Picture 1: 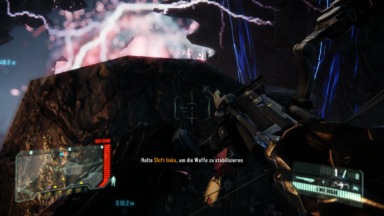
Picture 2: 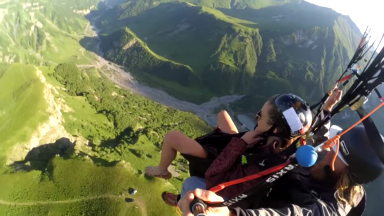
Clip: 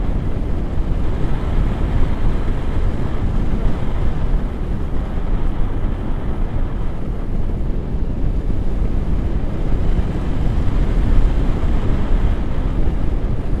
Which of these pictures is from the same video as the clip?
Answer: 2